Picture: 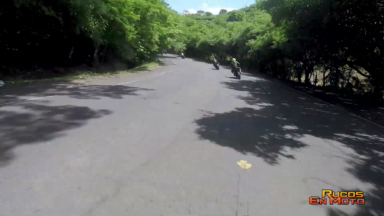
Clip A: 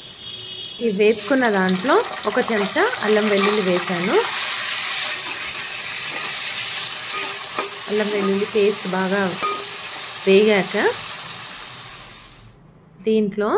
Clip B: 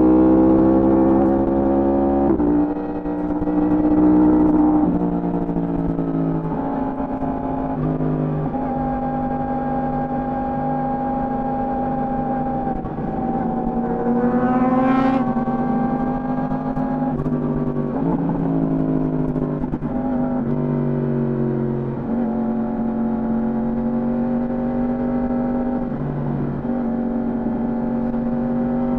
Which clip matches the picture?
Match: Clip B